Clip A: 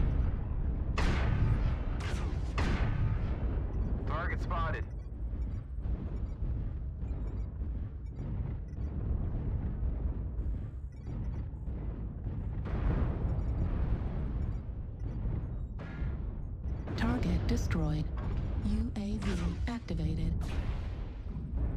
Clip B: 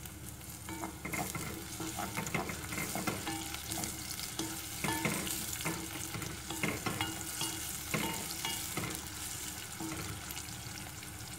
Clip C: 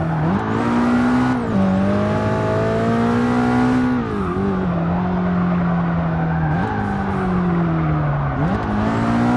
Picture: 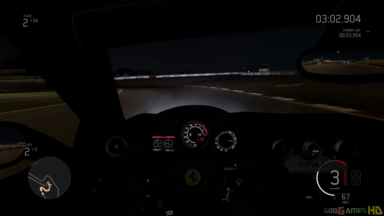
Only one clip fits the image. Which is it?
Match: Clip C